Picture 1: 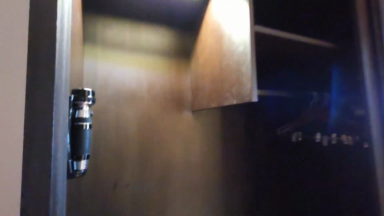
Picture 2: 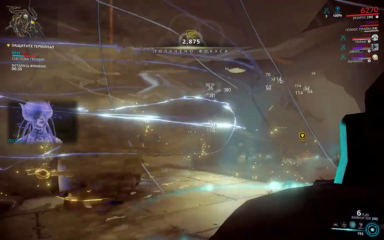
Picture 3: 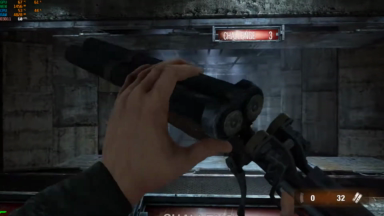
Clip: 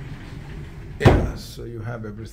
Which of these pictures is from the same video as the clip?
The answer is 1